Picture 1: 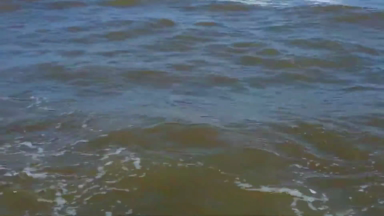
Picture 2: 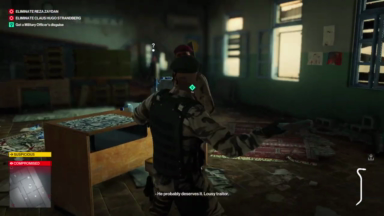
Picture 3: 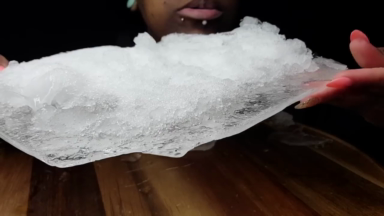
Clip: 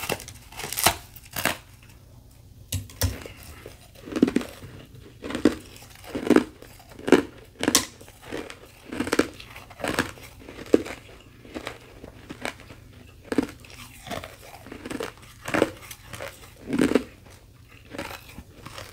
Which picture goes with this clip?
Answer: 3